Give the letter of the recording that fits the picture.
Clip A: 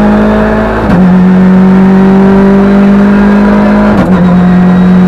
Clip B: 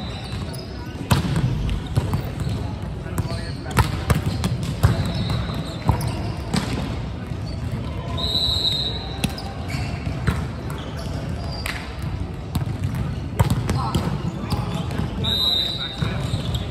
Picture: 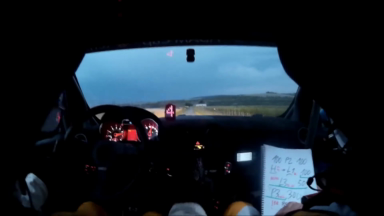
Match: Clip A